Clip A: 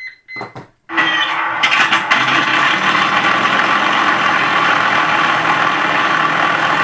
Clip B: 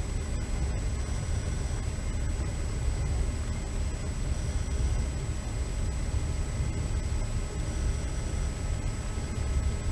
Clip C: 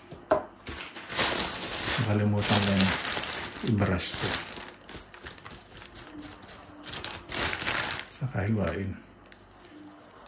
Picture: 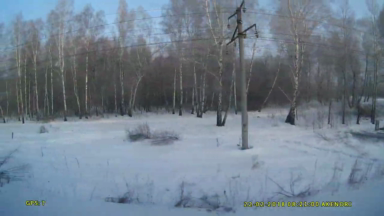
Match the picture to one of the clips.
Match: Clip B